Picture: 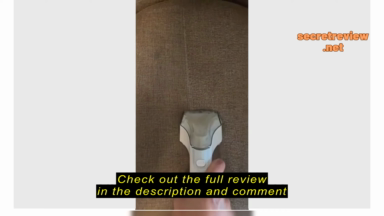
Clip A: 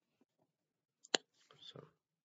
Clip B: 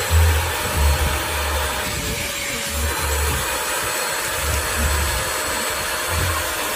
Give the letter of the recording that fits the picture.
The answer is B